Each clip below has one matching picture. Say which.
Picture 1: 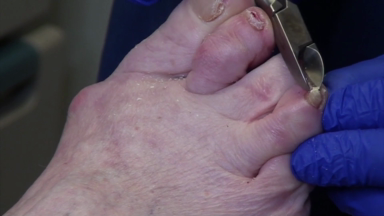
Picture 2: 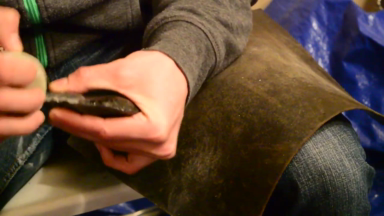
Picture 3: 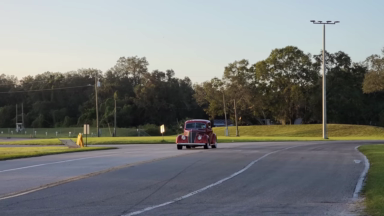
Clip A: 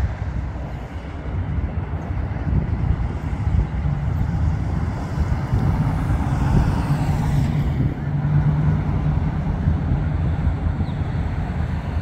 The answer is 3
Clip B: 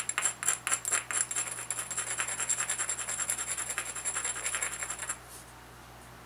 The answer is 2